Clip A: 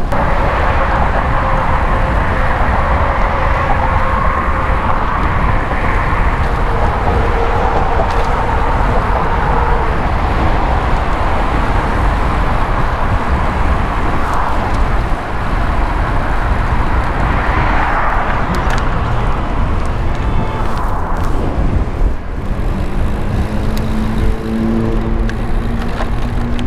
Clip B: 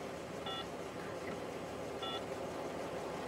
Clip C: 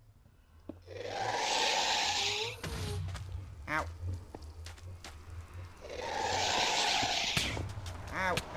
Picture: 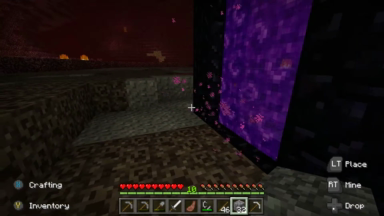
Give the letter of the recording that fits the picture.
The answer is C